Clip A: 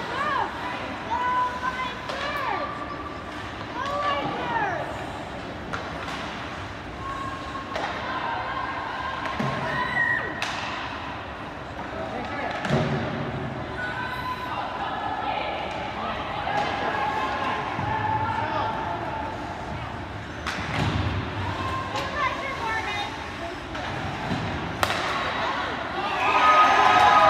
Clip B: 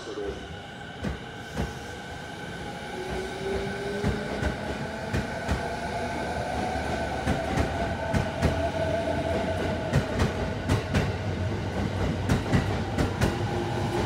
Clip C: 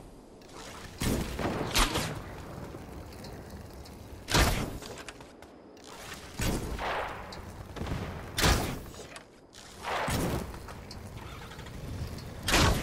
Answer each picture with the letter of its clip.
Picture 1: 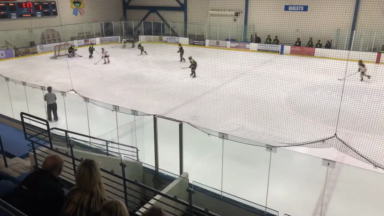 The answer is A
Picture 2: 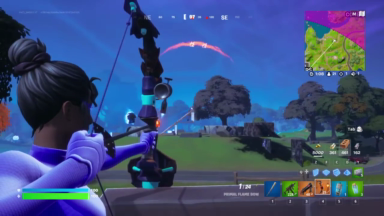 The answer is C